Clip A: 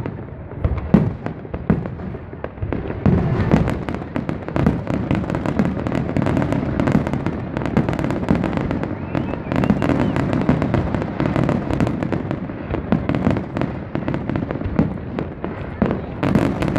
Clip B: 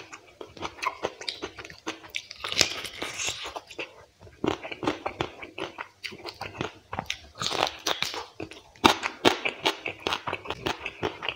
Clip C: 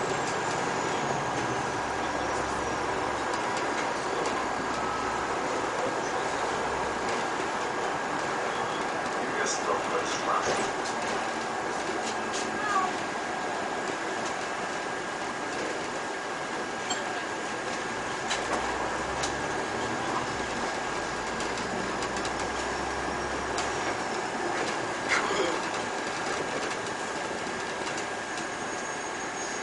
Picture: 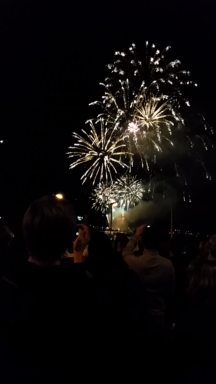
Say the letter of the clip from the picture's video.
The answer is A